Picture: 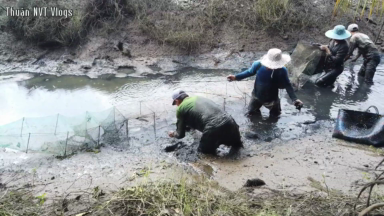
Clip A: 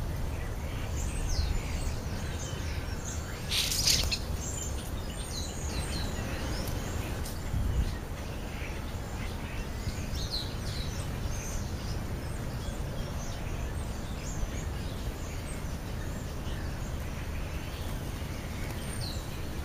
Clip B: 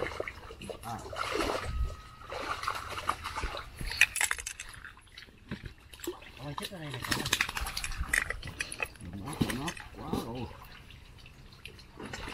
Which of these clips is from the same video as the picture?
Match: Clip B